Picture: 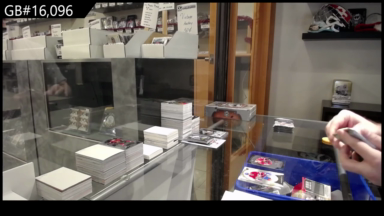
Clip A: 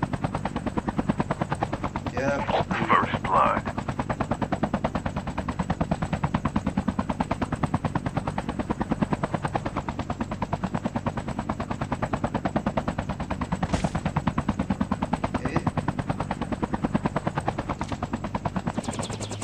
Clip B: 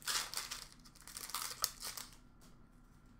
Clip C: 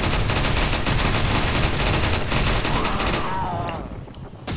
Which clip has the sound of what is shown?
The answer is B